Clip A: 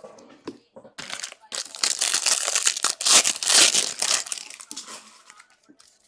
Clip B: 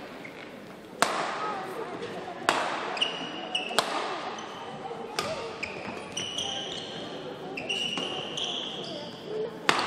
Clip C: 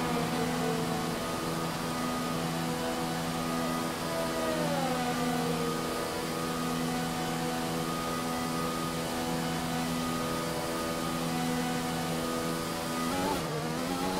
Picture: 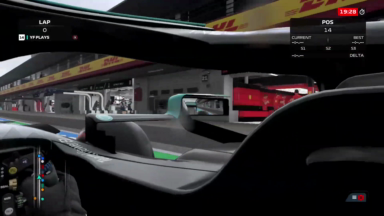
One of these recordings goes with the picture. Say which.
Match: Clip C